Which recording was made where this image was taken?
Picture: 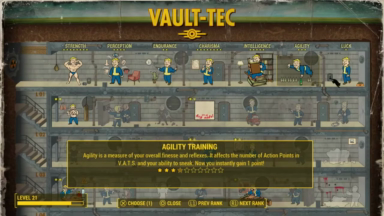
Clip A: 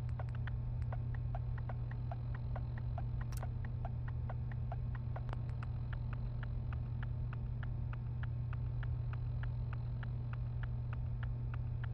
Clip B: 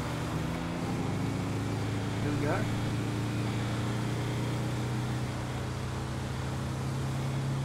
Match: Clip A